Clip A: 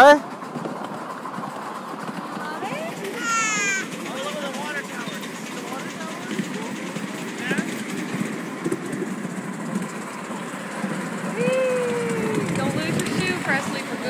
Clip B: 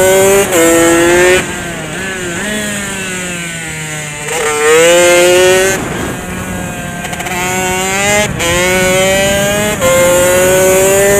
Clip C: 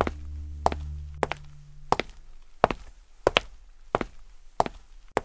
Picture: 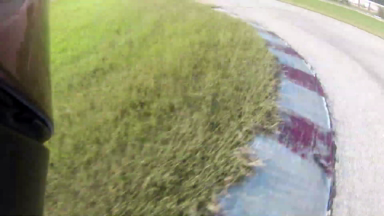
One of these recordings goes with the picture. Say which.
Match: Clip B